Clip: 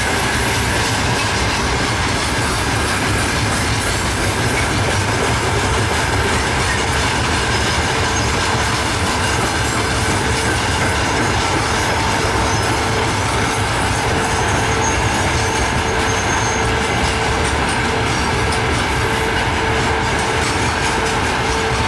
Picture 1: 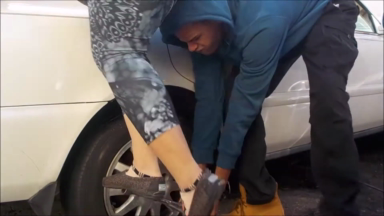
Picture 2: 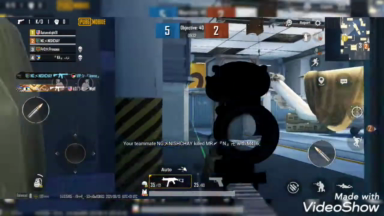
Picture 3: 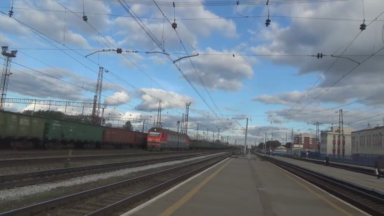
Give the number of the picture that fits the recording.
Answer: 3